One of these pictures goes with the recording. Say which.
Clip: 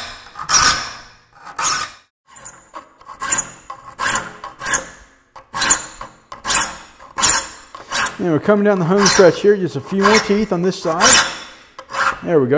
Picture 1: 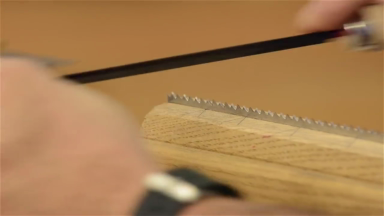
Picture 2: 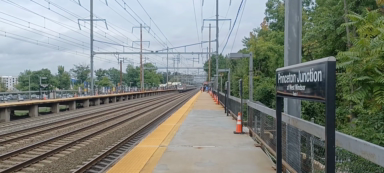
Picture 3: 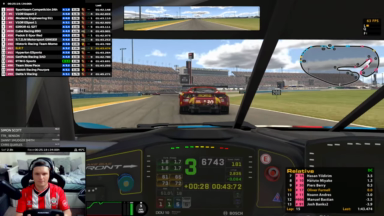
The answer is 1